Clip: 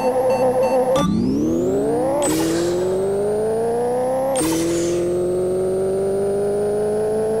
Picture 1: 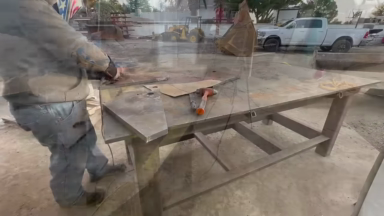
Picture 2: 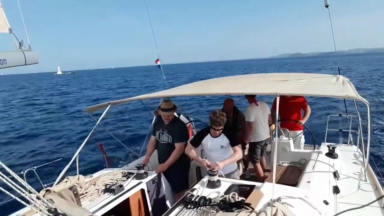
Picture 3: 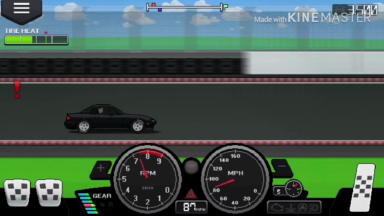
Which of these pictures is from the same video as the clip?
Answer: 3